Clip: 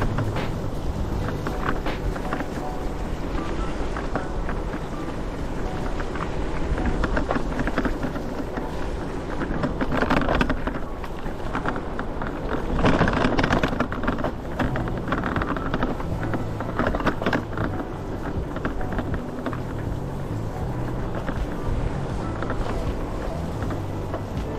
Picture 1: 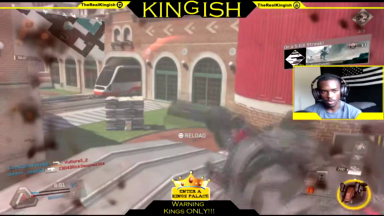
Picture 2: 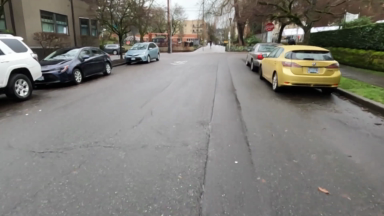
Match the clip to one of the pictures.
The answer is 2